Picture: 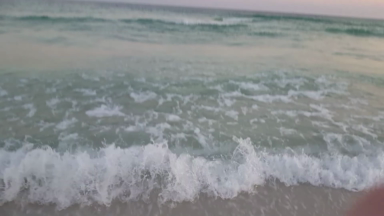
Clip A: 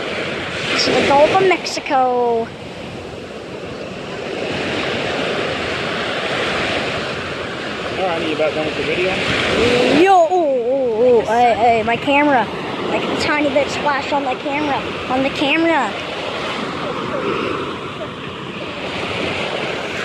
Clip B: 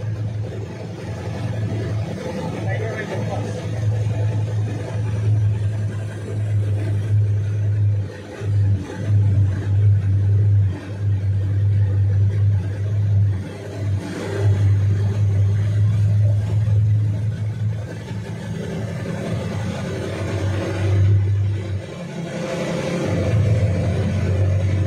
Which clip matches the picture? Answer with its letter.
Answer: A